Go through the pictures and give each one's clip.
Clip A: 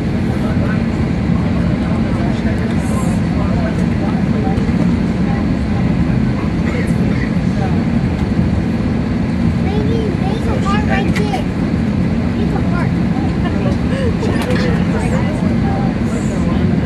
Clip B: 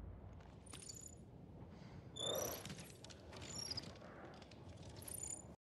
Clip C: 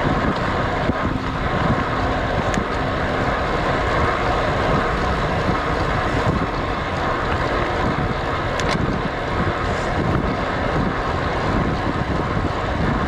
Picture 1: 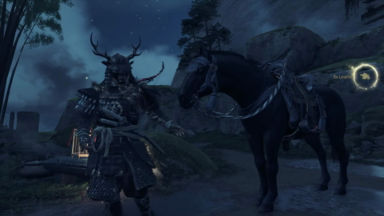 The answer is B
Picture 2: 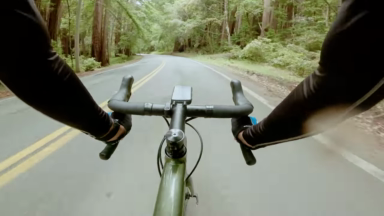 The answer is C